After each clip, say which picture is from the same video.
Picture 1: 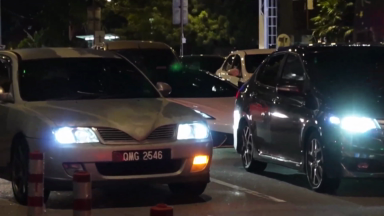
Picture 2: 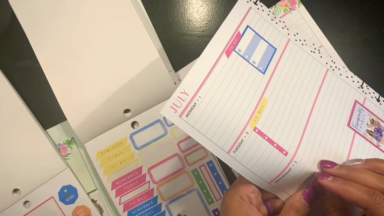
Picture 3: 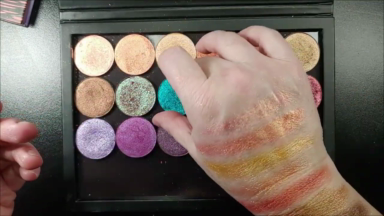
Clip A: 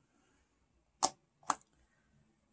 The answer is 3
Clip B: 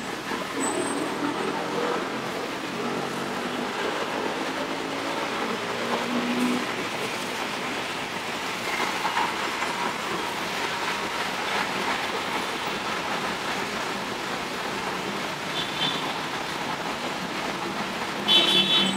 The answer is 1